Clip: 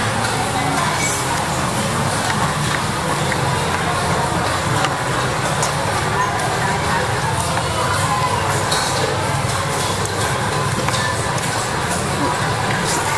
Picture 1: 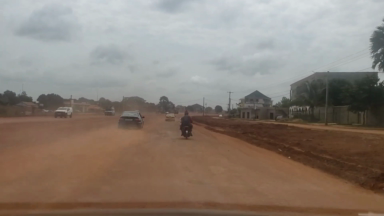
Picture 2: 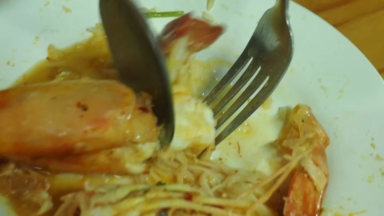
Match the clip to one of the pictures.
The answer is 2